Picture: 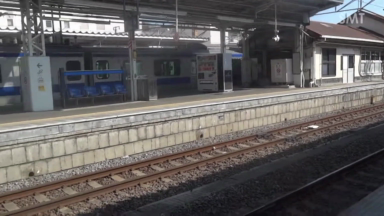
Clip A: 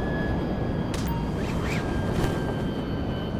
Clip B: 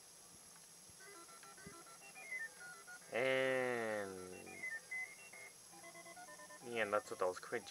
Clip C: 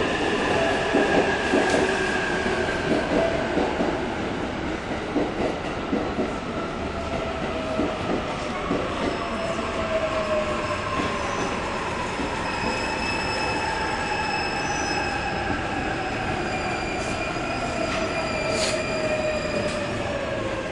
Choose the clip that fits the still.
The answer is C